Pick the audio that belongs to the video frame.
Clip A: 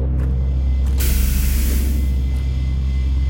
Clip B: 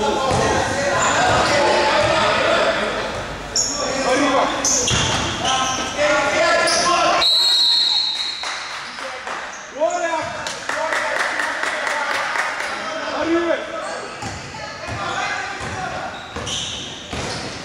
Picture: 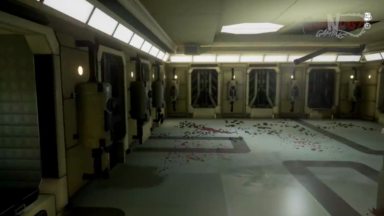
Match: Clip A